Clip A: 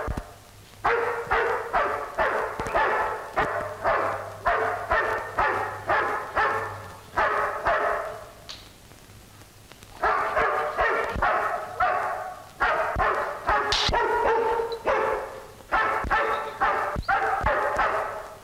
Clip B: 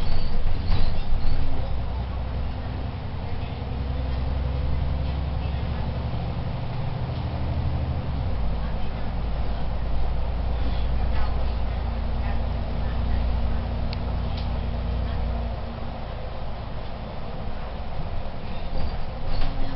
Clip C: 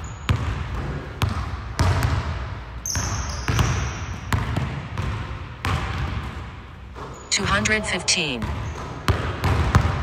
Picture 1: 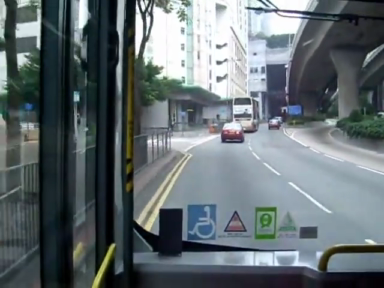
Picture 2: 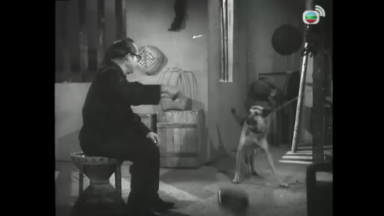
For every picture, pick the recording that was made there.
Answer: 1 B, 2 A